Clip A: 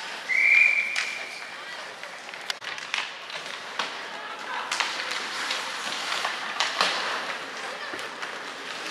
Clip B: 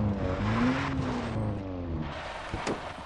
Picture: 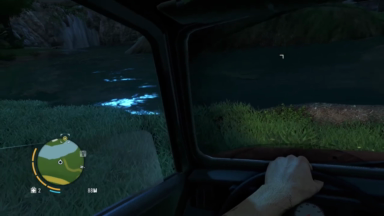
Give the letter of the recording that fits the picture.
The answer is B